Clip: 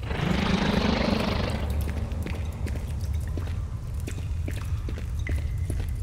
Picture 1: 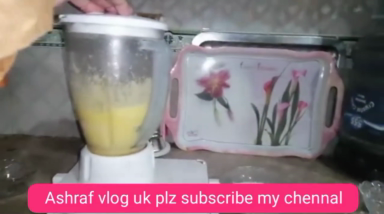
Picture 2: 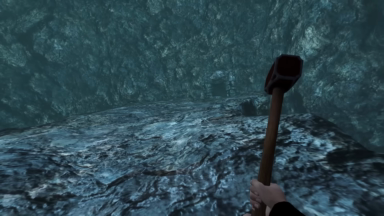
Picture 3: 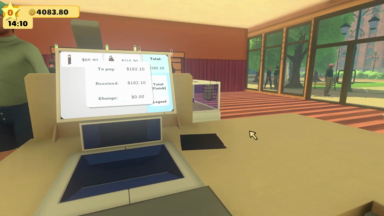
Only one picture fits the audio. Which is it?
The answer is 2